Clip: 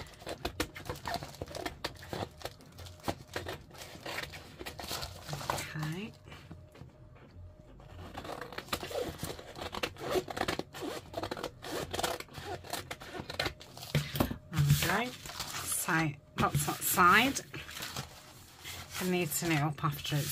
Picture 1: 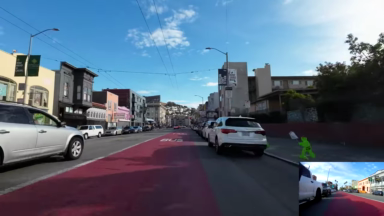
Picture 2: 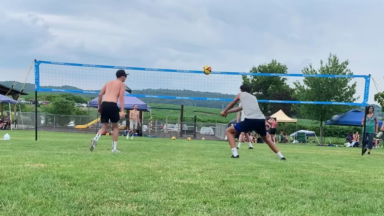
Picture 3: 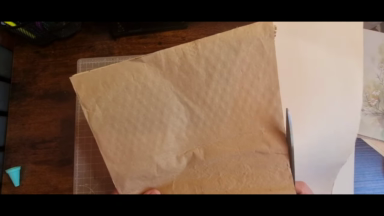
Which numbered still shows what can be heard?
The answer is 3